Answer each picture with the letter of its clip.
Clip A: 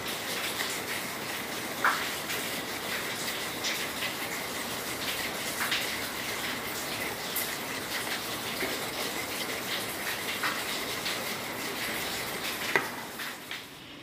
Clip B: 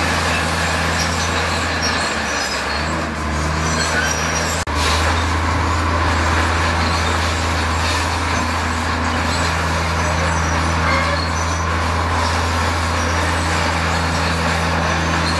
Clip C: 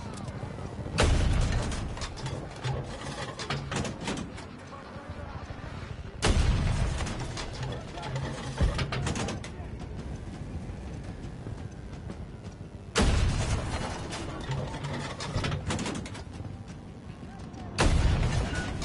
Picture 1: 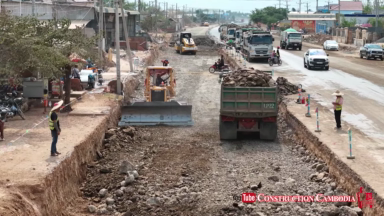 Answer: B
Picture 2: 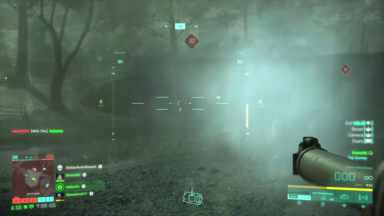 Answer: C